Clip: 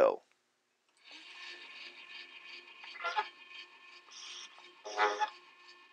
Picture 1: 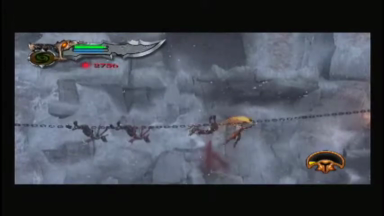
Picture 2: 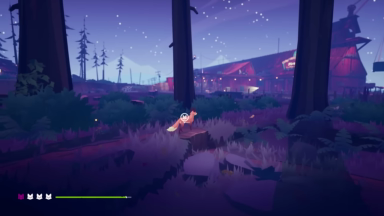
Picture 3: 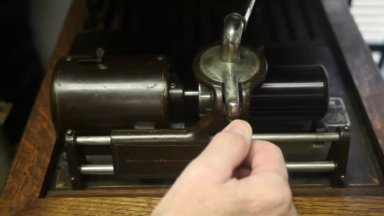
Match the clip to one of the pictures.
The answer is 3